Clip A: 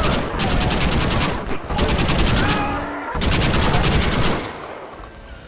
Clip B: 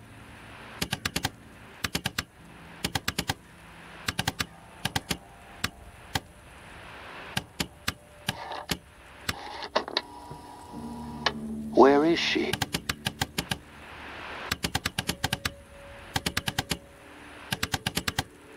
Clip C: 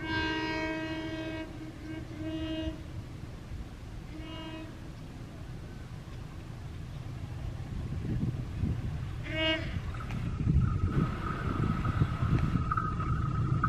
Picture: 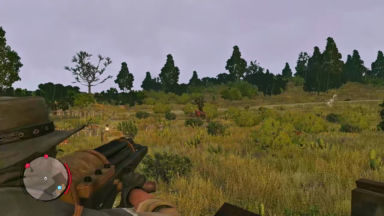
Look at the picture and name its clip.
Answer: A